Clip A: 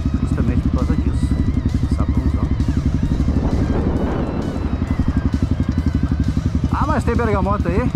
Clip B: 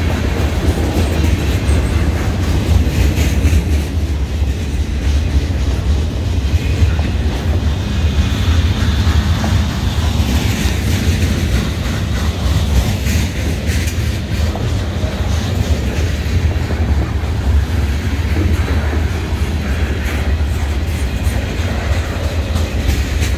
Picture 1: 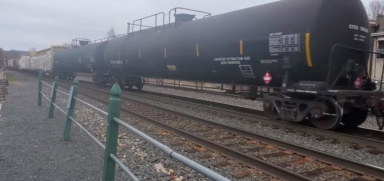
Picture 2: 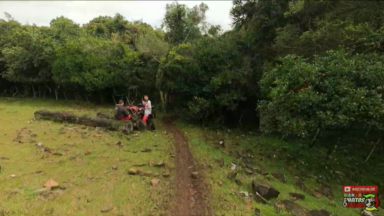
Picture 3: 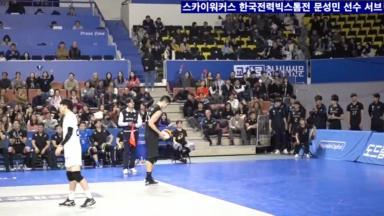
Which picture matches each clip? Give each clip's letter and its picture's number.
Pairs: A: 2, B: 1